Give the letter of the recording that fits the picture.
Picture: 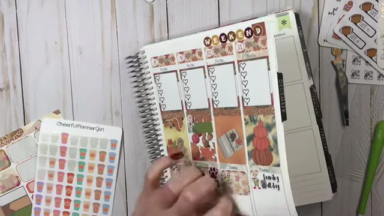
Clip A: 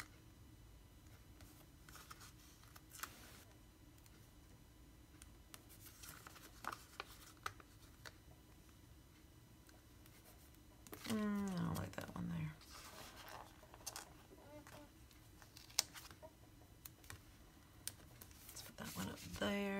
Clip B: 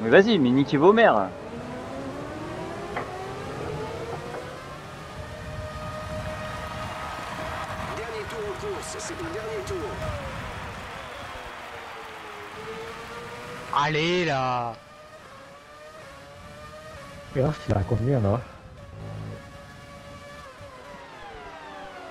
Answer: A